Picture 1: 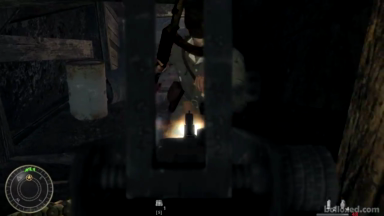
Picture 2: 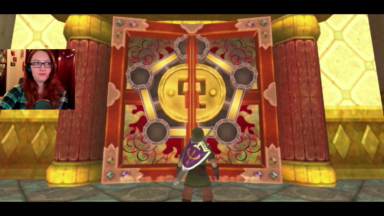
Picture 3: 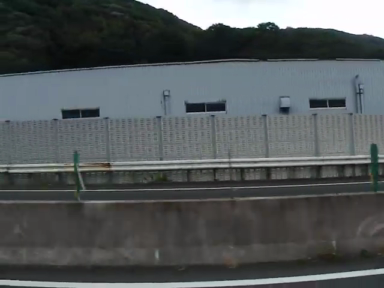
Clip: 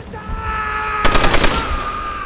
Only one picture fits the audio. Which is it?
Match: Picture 1